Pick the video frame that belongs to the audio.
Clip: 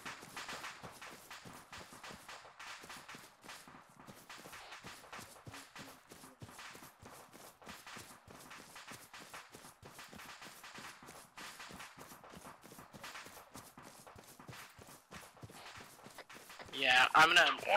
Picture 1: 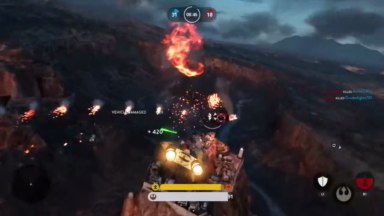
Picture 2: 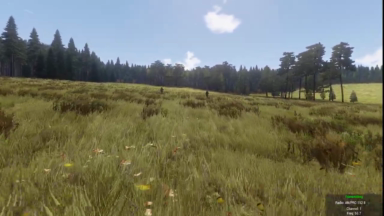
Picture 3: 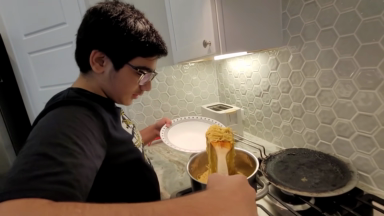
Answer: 2